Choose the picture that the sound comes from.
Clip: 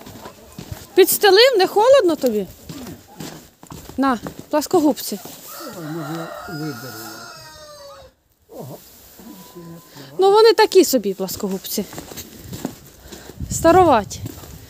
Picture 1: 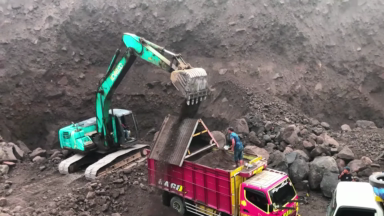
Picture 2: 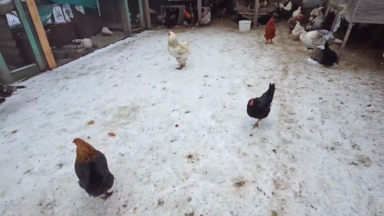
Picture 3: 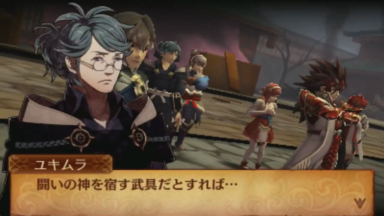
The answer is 2